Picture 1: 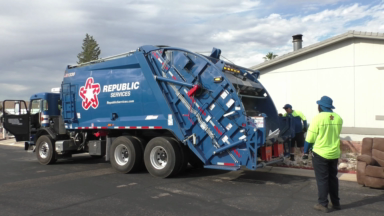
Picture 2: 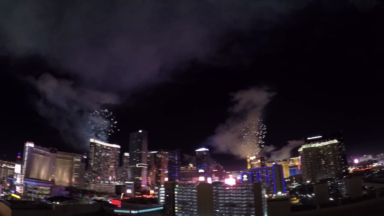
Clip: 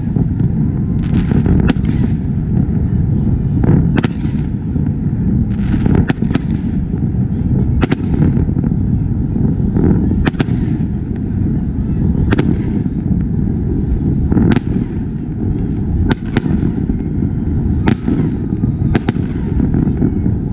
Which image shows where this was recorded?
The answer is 2